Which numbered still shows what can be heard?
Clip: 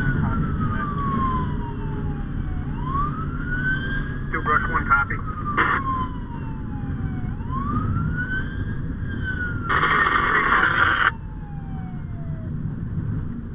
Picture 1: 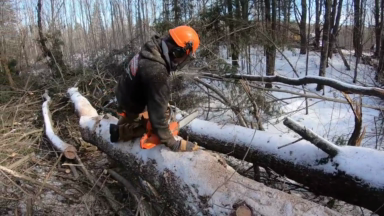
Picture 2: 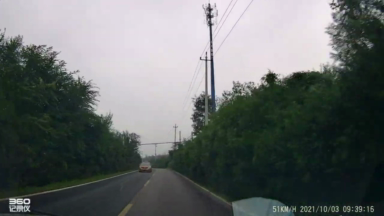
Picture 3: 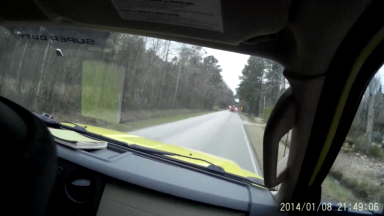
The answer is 3